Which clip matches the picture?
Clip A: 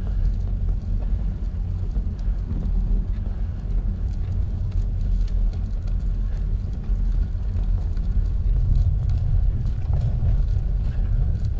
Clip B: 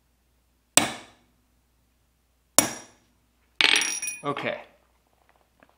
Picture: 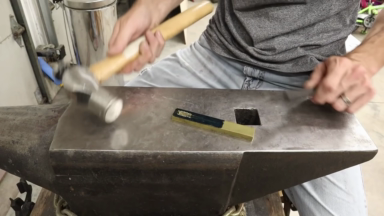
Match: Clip B